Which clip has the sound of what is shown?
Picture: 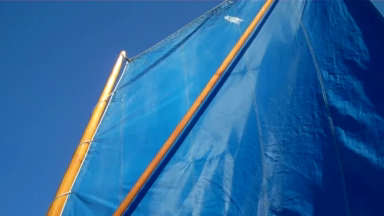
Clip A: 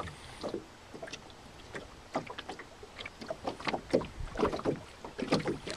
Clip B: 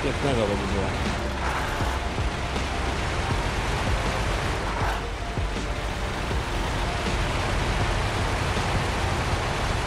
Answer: A